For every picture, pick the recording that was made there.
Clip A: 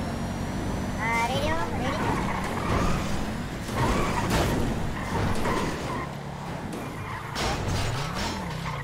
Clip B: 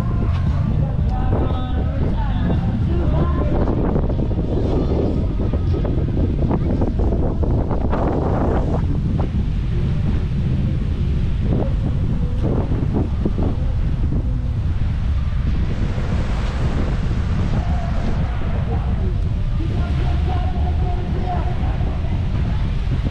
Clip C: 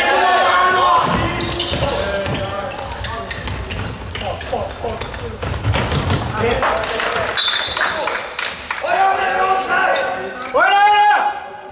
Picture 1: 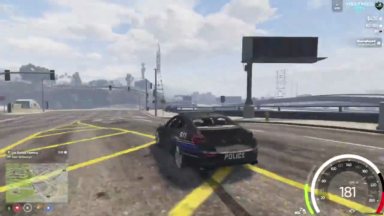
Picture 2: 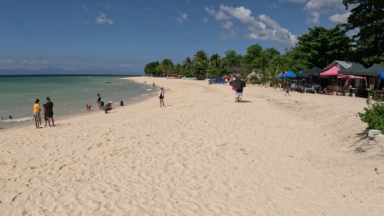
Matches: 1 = A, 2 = B